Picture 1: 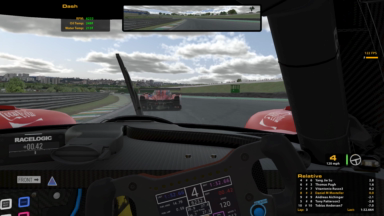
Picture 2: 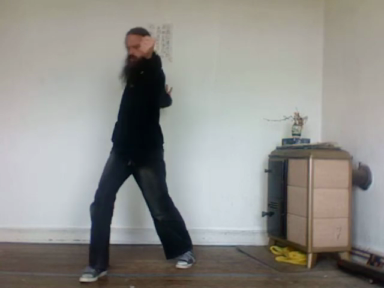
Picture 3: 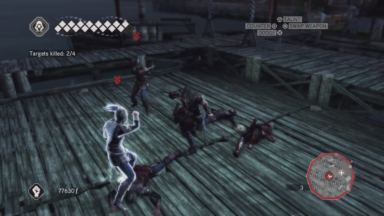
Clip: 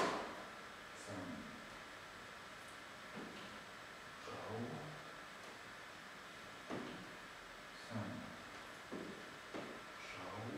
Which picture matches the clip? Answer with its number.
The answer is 2